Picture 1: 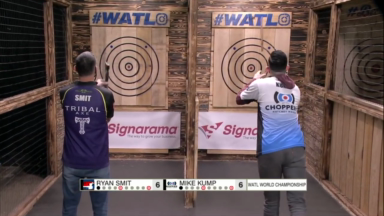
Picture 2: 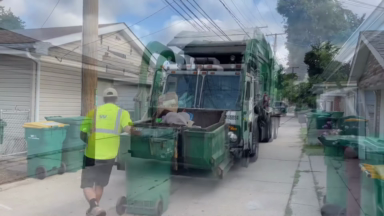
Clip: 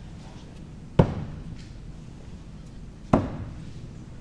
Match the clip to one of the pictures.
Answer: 1